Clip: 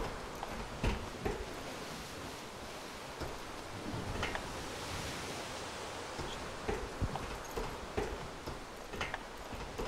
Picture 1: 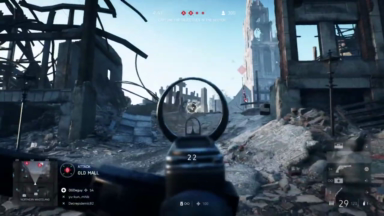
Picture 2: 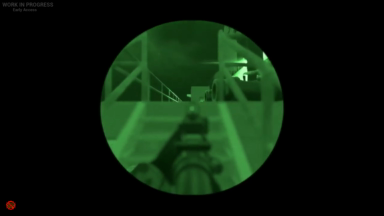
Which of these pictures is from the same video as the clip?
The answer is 2